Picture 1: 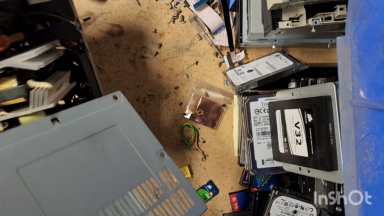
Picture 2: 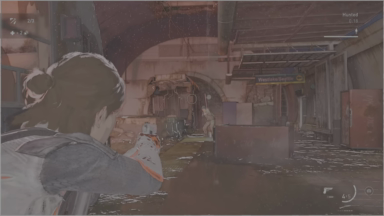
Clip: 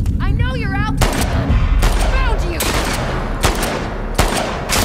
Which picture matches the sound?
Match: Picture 2